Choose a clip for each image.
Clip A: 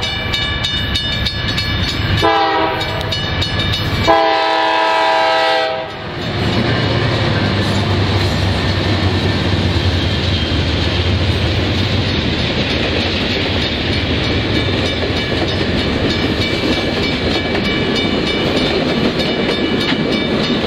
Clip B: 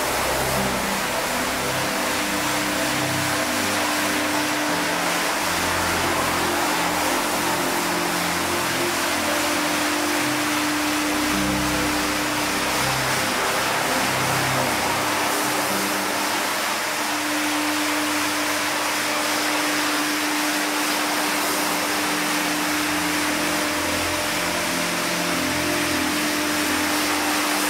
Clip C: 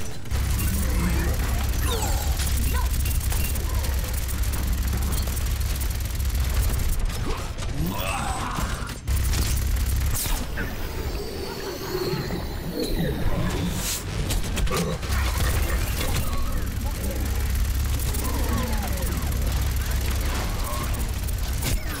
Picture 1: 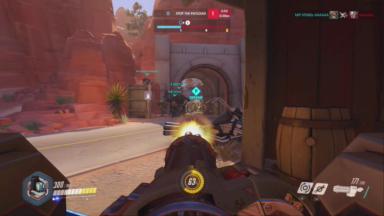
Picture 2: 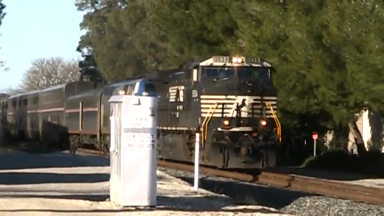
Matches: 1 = C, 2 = A